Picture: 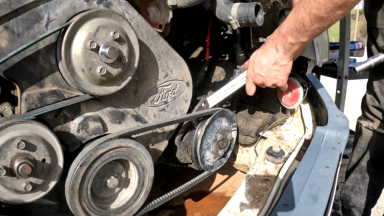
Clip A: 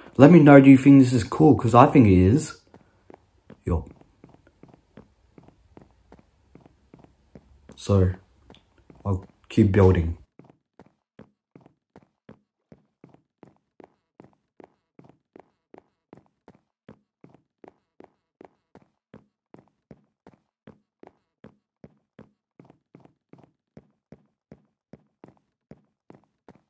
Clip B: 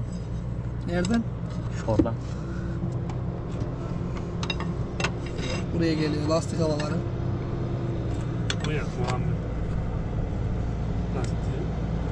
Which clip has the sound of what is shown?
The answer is B